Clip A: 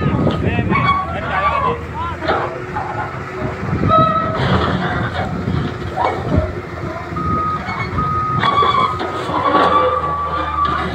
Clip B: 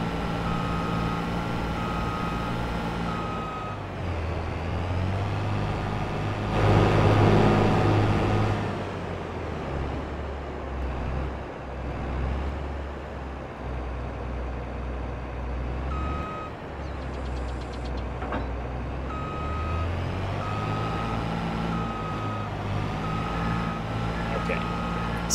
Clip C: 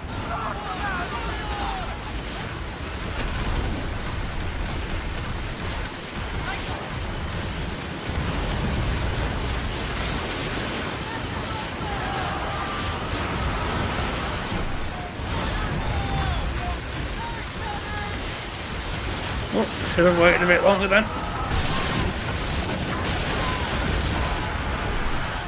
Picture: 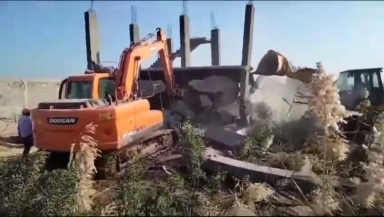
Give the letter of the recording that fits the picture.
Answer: A